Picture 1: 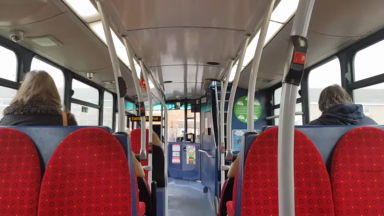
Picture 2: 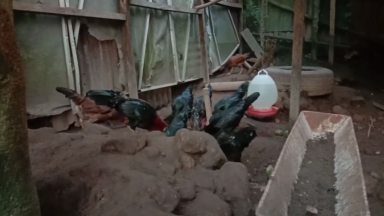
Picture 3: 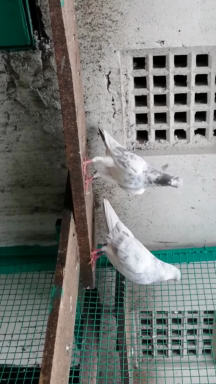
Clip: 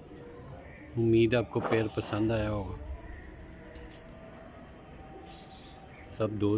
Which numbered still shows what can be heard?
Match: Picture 3